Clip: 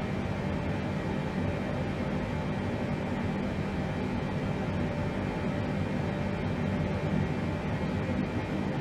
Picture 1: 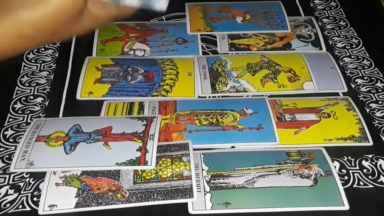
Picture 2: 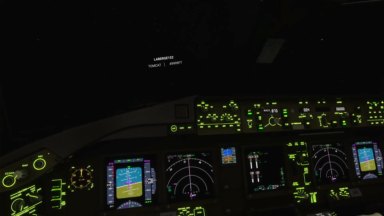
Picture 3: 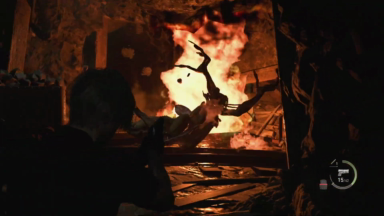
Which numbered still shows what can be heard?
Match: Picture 2